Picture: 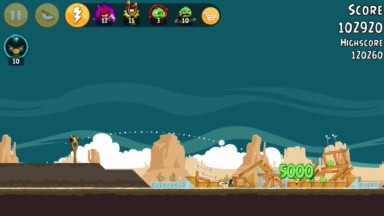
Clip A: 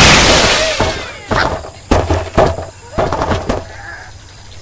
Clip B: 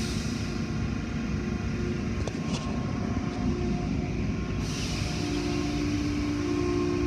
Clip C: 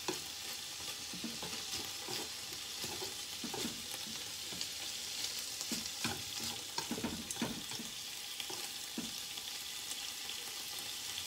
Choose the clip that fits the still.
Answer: A